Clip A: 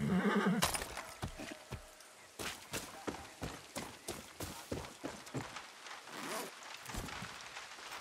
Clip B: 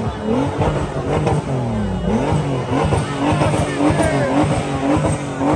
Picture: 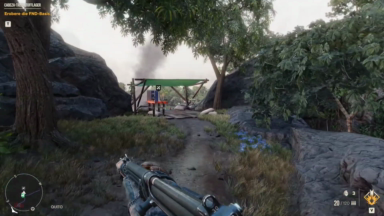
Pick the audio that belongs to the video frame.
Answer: A